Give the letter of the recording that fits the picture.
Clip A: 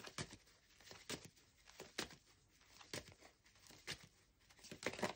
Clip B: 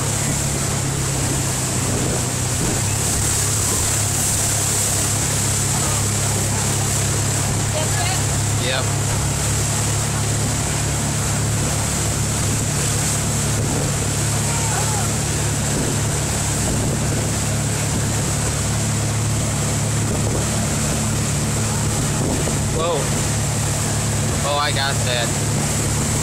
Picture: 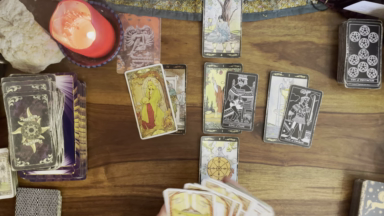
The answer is A